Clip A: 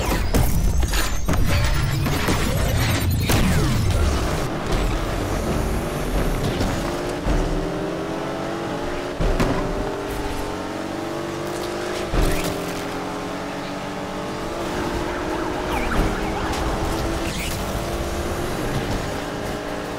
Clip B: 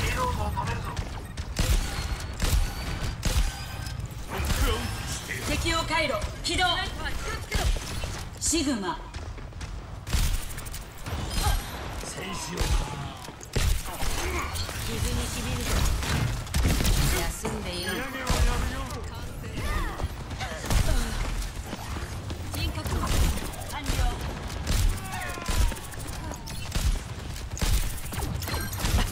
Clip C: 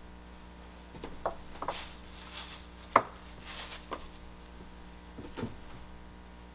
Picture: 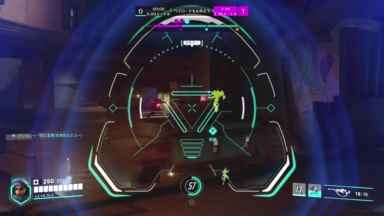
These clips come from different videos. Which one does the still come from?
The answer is B